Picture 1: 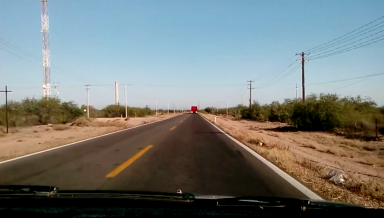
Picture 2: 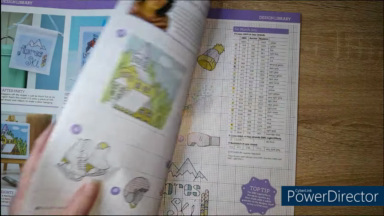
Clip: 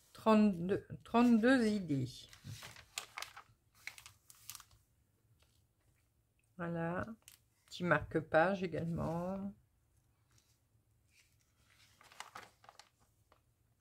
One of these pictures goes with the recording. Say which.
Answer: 2